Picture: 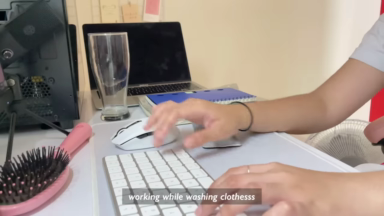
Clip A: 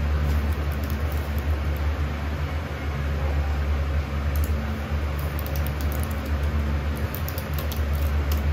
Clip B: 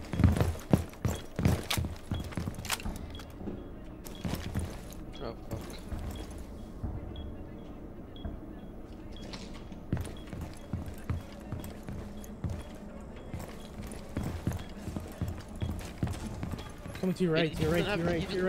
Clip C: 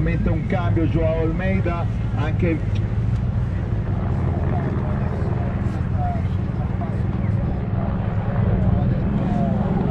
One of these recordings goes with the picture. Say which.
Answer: A